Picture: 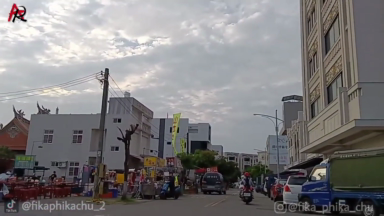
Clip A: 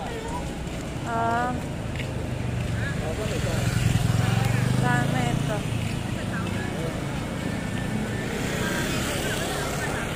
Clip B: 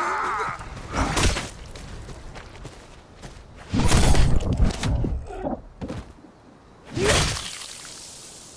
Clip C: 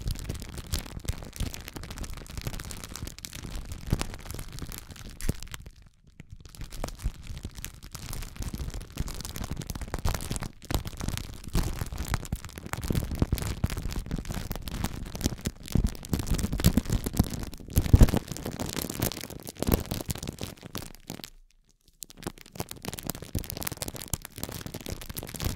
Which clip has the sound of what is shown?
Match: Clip A